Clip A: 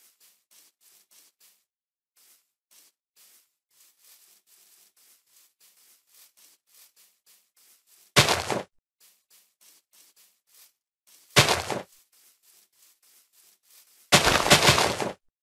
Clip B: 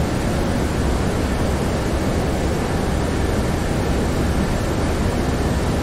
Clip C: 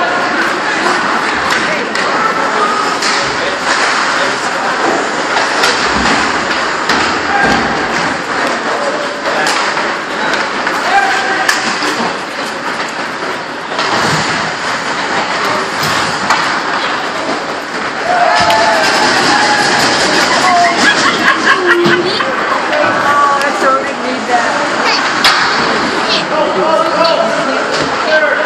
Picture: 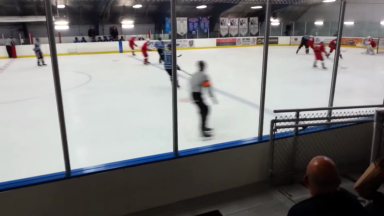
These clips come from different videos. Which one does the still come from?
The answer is C